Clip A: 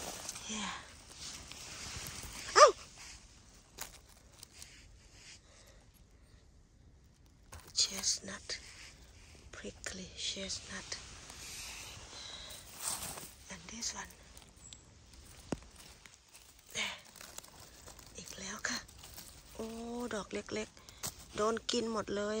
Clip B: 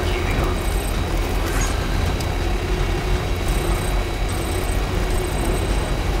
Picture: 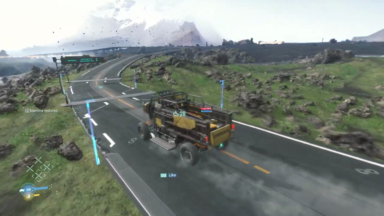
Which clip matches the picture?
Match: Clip B